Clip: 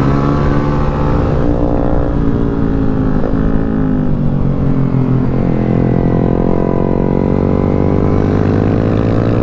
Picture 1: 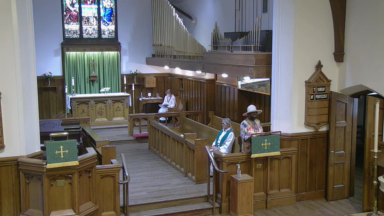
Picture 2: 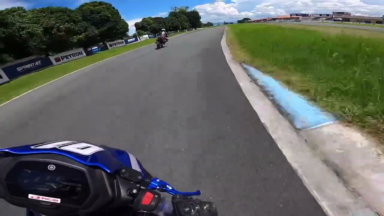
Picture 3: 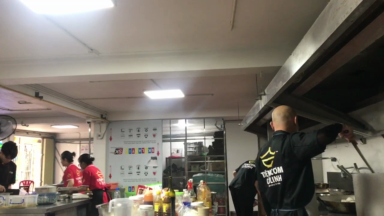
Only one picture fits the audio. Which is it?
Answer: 2